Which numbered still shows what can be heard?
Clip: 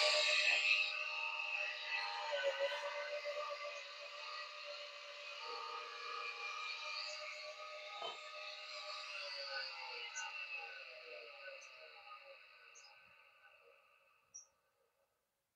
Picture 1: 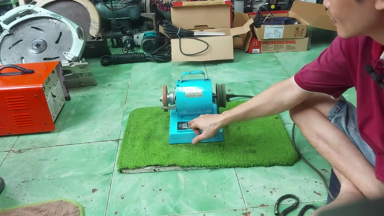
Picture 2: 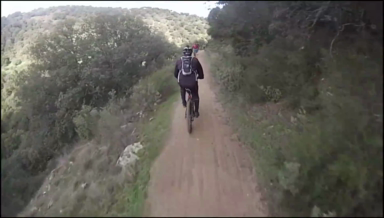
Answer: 1